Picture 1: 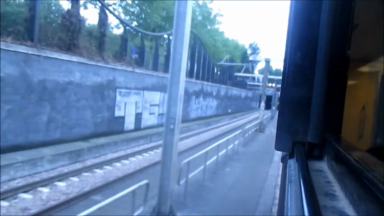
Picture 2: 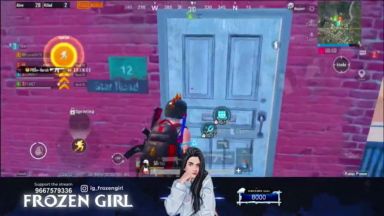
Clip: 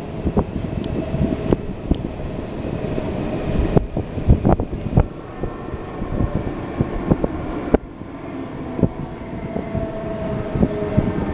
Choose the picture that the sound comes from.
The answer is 1